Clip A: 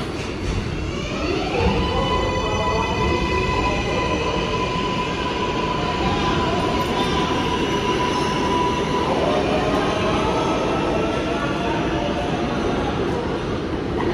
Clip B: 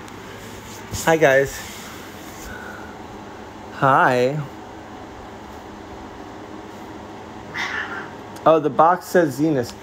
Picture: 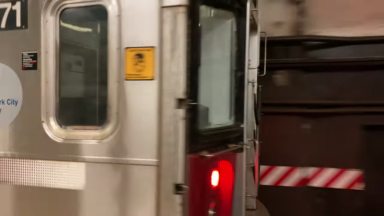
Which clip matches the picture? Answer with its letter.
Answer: A